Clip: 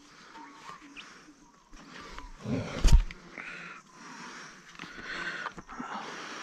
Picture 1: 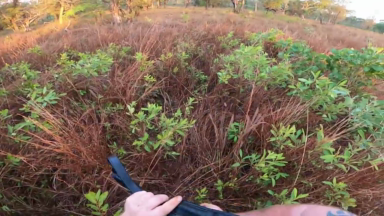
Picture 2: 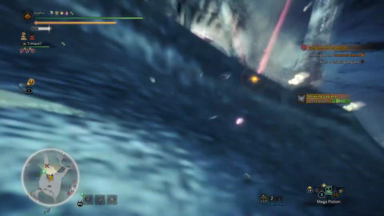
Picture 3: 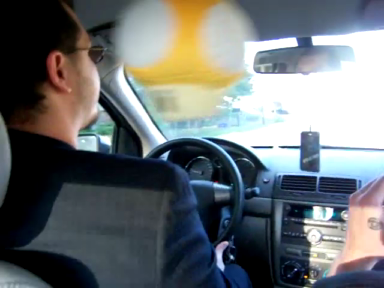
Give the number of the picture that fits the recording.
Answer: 1